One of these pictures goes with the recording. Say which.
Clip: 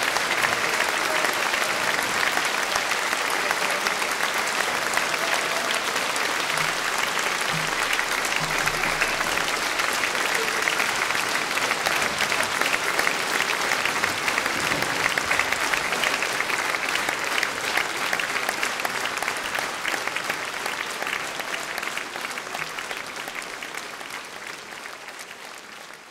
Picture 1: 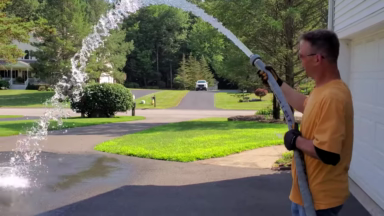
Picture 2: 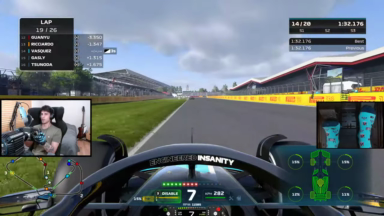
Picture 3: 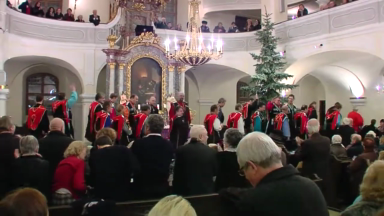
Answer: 3